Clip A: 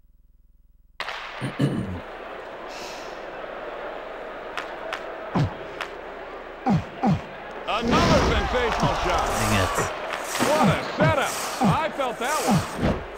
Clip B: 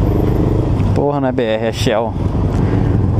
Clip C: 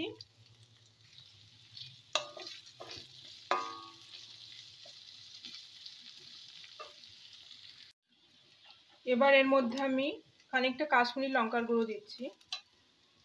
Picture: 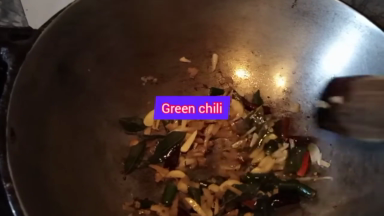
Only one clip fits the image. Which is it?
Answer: C